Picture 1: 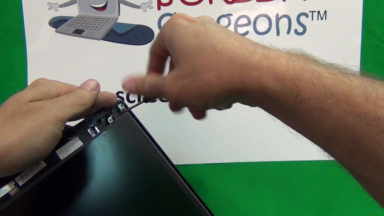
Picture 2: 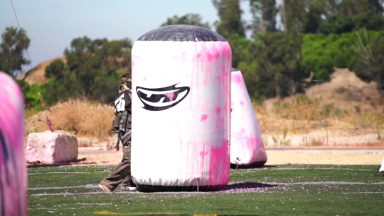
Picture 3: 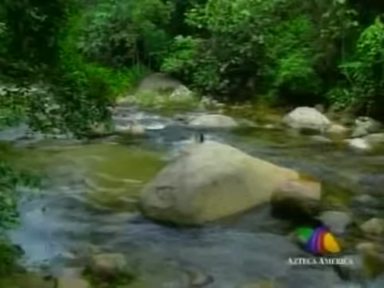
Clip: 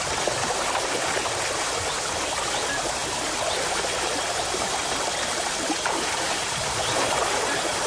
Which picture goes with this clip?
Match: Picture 3